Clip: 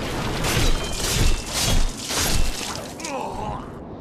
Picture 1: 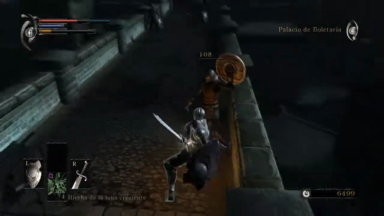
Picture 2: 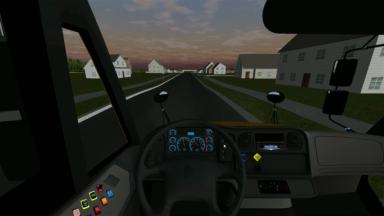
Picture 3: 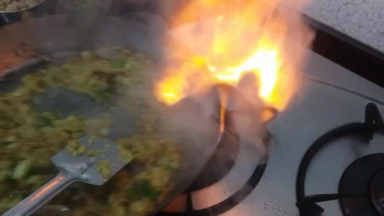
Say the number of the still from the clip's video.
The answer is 1